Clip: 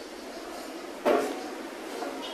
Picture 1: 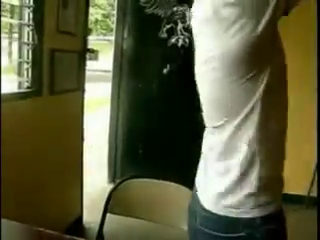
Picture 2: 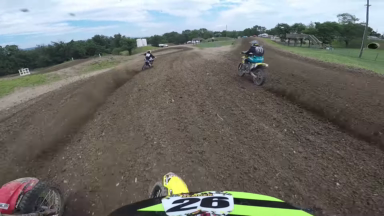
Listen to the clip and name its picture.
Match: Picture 1